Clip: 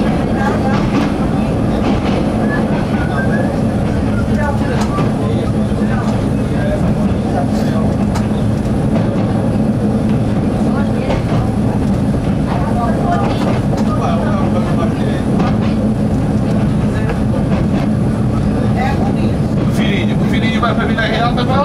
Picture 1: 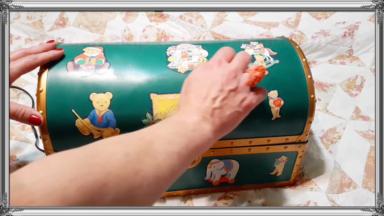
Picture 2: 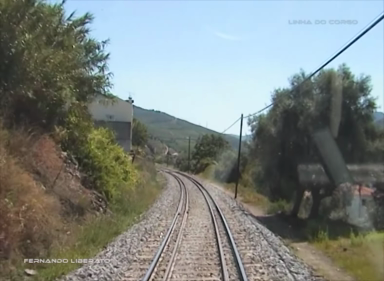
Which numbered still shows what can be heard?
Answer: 2